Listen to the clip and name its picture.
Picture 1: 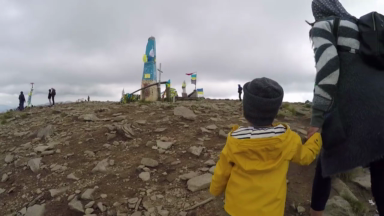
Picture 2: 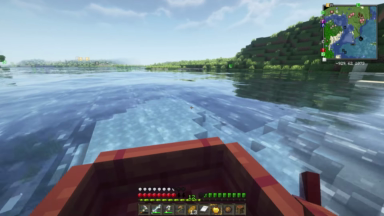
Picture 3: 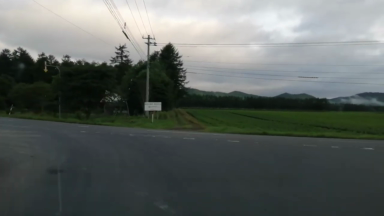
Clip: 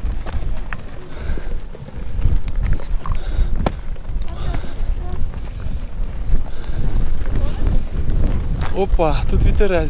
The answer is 1